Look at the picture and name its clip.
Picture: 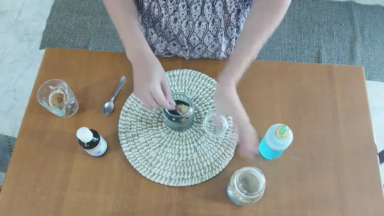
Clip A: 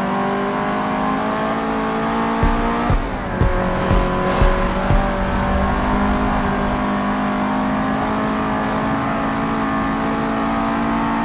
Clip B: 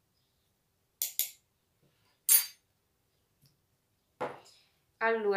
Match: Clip B